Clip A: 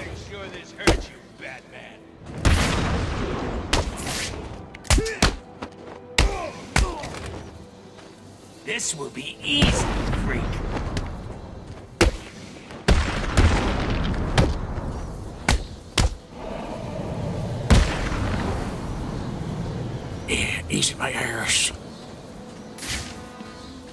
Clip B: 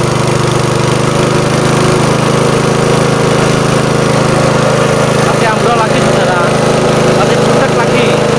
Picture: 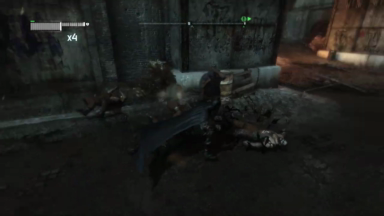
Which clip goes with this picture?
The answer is A